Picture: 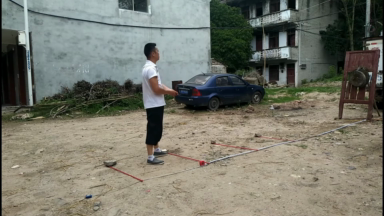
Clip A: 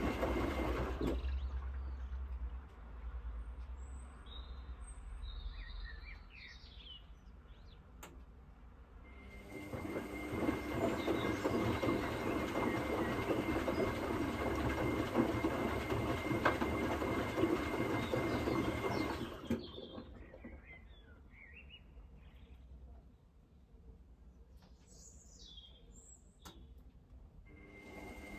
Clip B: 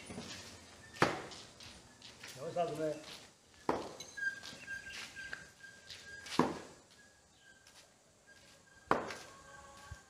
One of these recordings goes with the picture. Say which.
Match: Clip B